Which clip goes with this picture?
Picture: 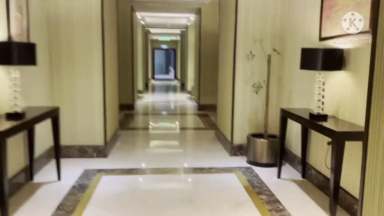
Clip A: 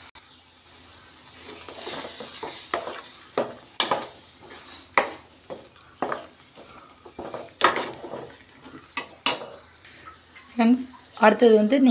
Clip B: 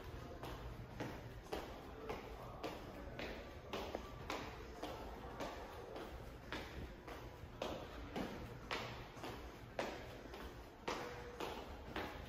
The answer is B